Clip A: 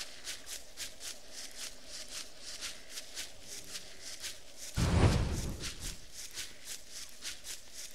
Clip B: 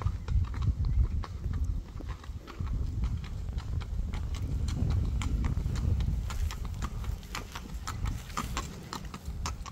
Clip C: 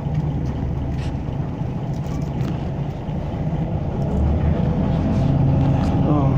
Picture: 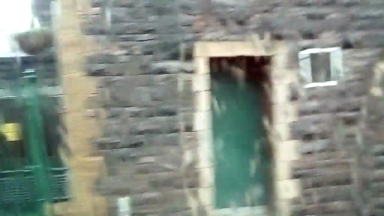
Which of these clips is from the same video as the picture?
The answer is C